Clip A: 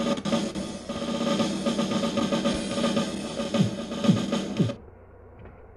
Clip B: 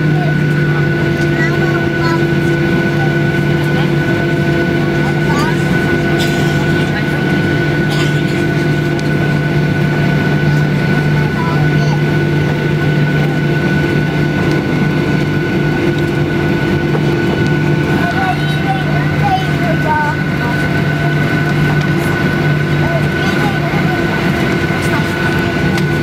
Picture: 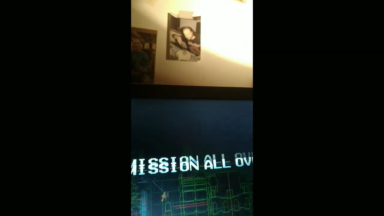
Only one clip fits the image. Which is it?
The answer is A